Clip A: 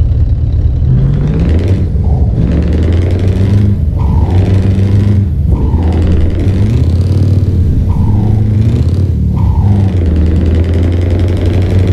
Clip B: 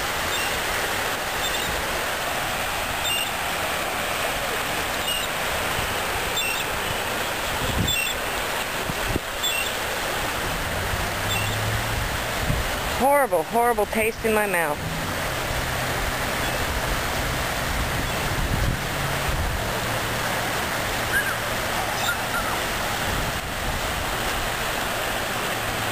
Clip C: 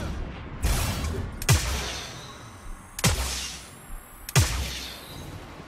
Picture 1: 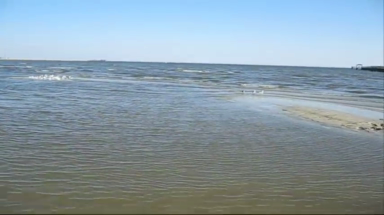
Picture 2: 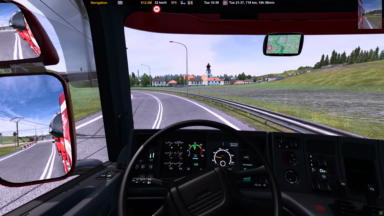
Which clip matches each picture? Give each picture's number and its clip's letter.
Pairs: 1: B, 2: A